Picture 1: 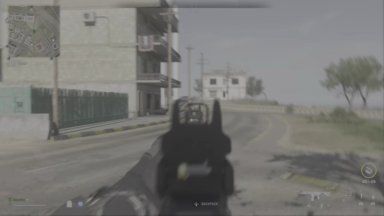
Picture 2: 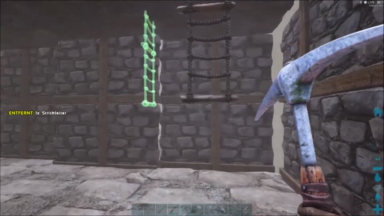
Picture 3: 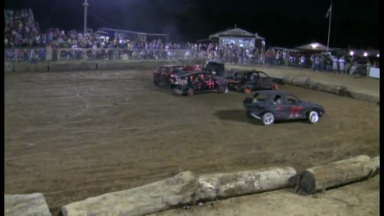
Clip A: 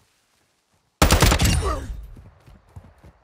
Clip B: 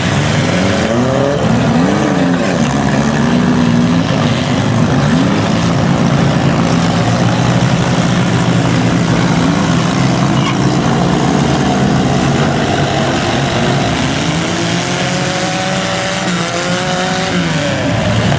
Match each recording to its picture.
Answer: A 1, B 3